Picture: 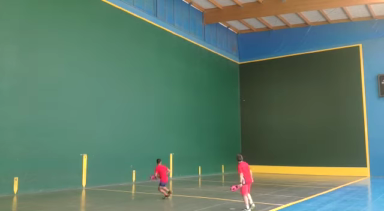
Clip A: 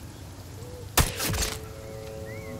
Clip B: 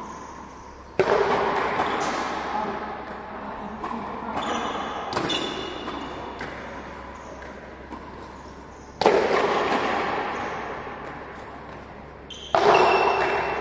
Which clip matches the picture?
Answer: B